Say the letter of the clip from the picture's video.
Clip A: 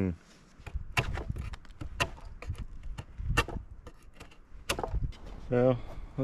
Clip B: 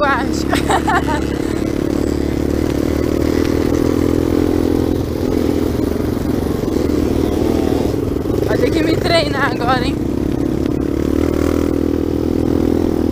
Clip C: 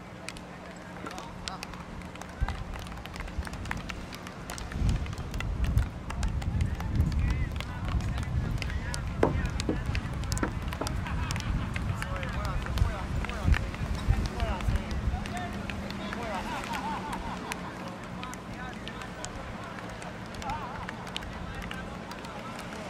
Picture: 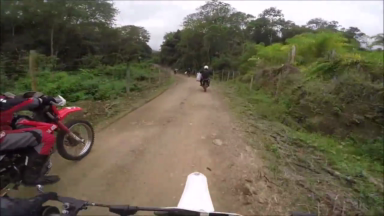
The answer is B